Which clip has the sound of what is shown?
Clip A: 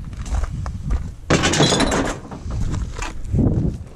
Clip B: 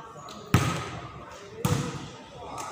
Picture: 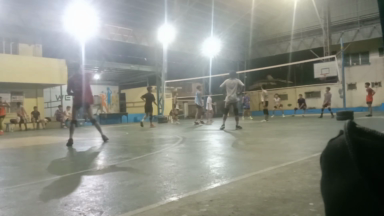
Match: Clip B